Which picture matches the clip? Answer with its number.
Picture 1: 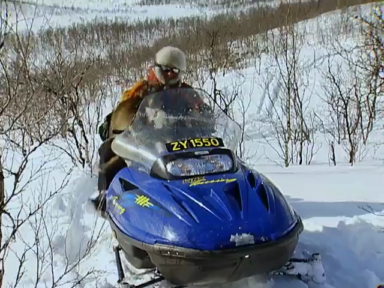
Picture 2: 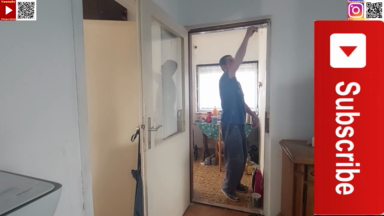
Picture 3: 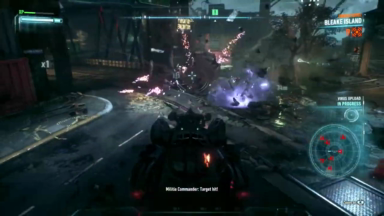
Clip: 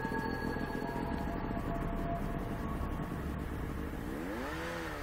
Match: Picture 1